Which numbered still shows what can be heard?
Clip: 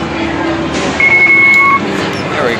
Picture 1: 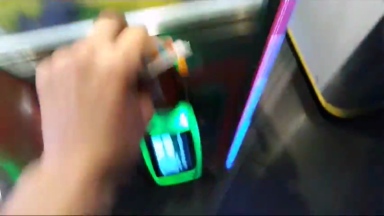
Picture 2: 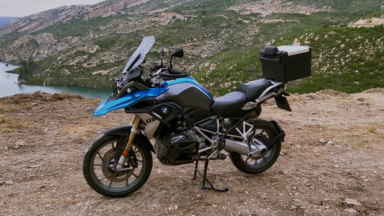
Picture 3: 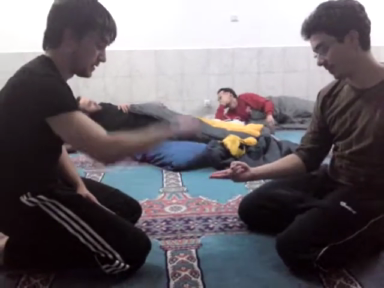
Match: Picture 1